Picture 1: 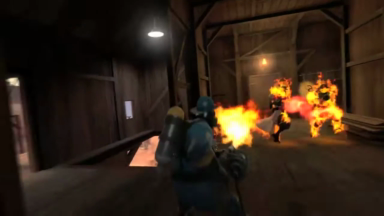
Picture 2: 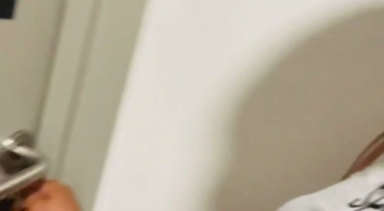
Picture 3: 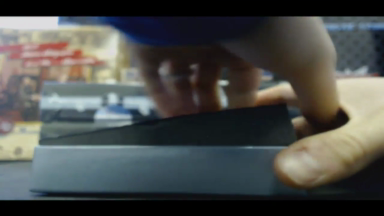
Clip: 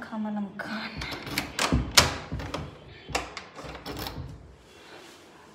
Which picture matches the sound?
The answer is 2